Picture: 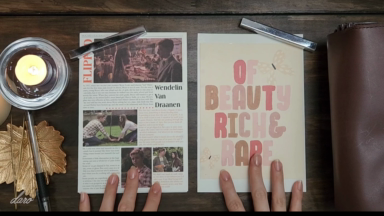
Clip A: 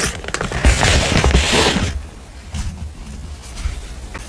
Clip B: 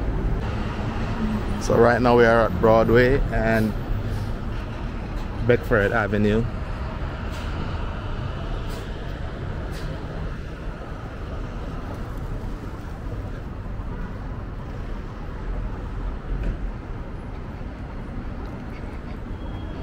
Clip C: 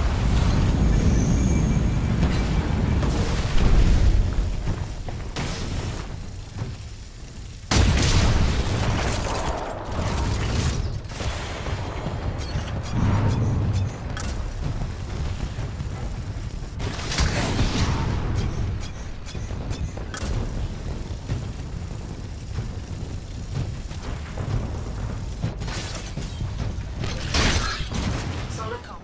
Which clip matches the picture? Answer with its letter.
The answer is A